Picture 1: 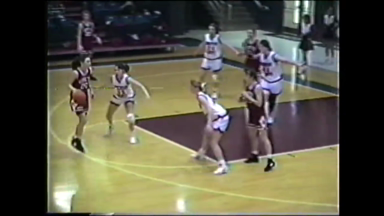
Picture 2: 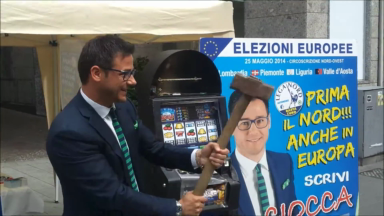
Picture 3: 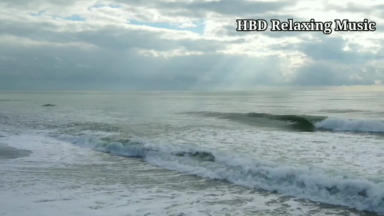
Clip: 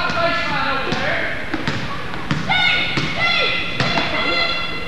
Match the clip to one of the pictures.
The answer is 1